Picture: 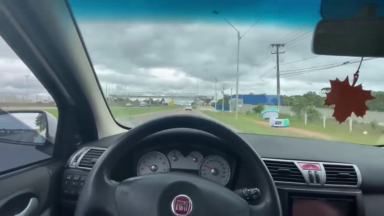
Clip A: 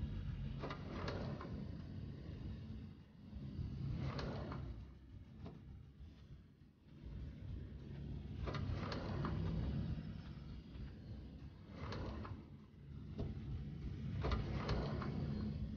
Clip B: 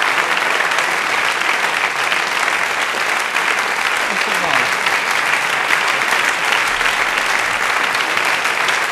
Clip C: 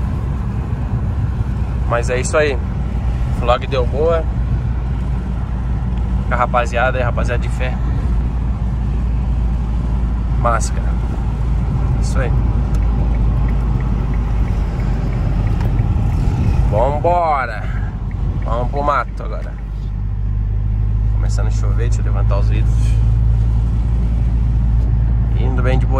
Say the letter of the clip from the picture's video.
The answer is C